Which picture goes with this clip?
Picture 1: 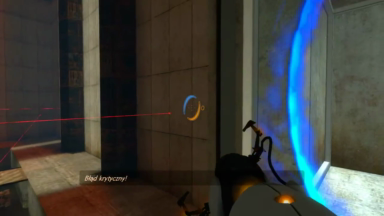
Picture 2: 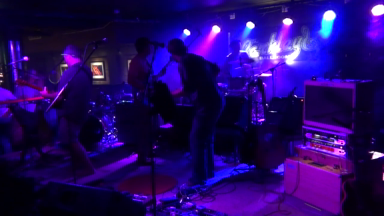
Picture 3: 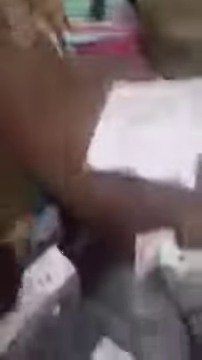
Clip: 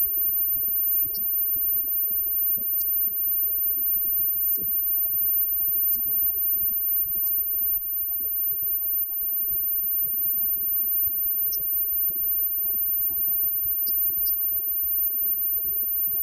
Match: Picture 2